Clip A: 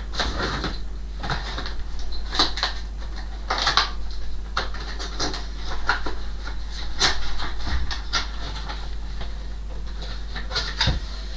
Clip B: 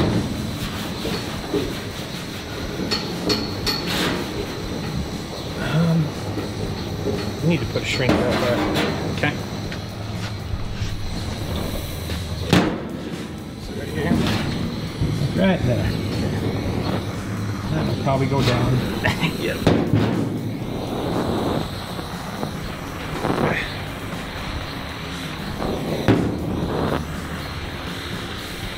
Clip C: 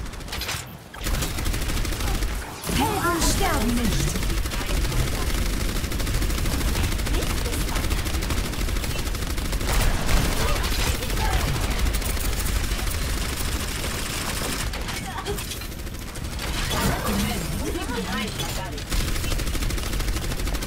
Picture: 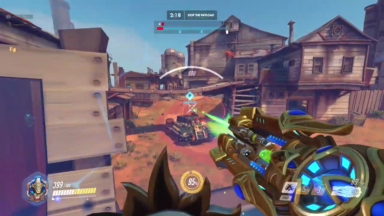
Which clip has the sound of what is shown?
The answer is C